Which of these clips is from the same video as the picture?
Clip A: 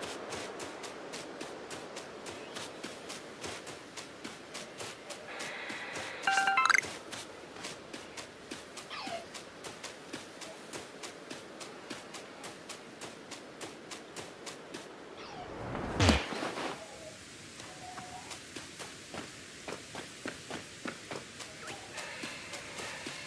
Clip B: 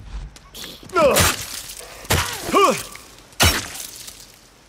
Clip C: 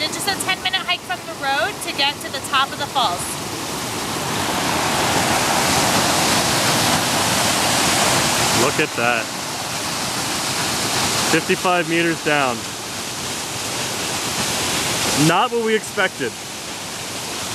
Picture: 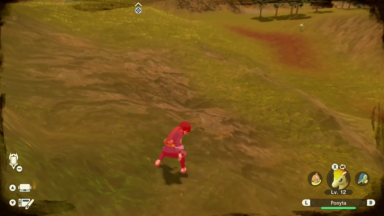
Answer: A